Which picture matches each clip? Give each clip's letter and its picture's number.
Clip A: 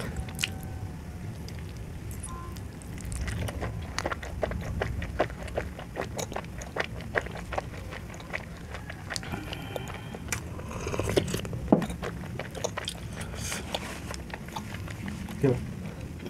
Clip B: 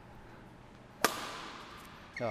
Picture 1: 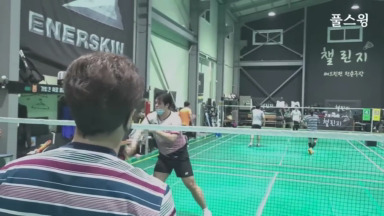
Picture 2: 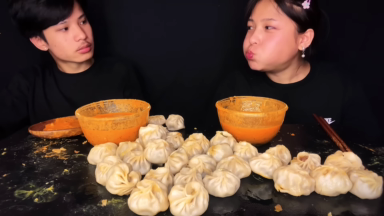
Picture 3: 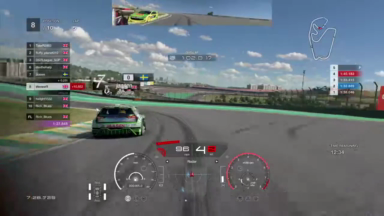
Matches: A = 2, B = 1